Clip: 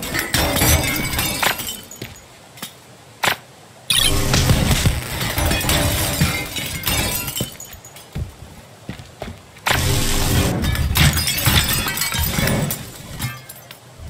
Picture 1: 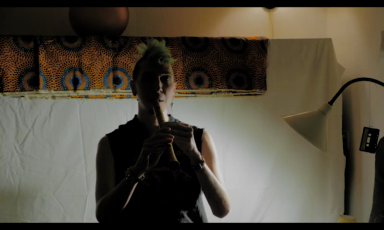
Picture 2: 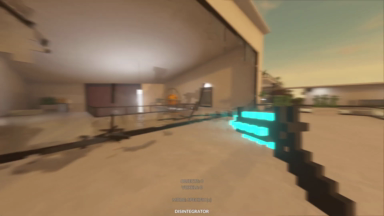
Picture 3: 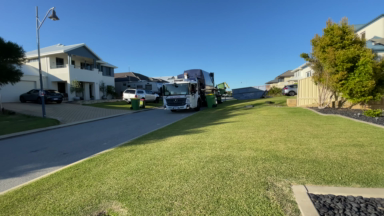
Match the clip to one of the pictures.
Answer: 2